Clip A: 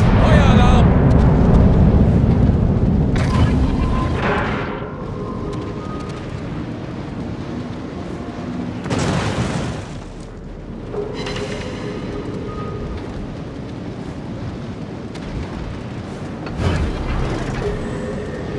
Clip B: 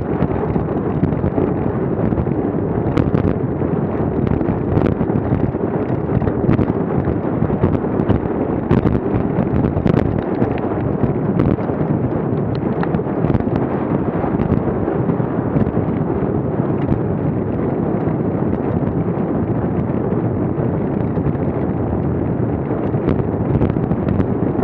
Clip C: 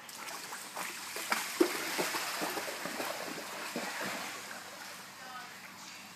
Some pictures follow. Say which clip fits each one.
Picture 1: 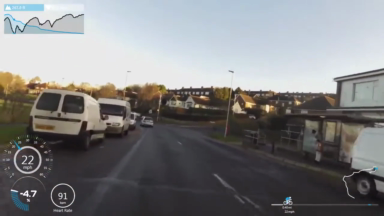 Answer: B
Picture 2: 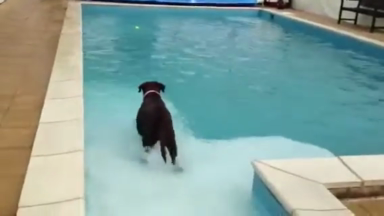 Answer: C